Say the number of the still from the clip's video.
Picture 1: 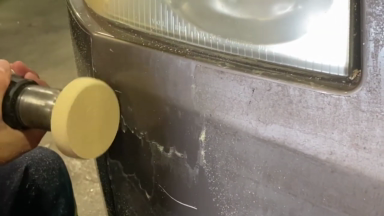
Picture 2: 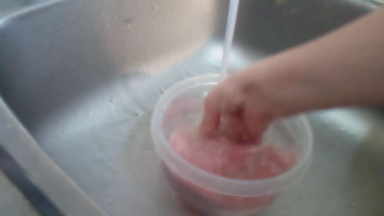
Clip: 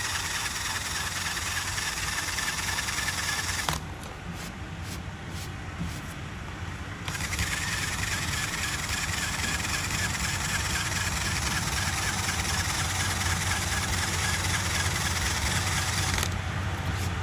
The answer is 1